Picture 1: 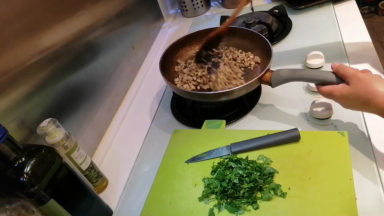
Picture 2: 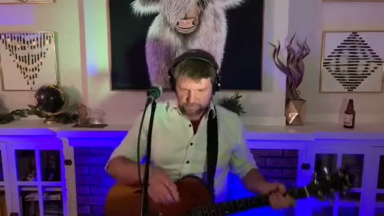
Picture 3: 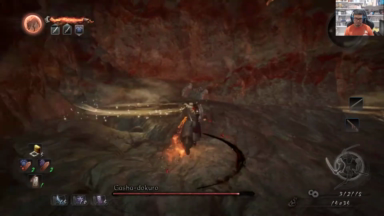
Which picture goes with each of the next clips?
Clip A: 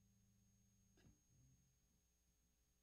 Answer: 2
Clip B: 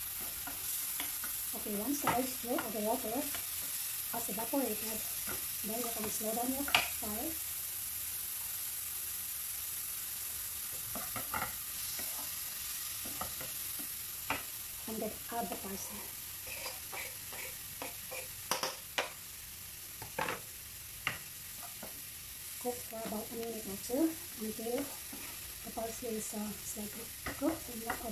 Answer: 1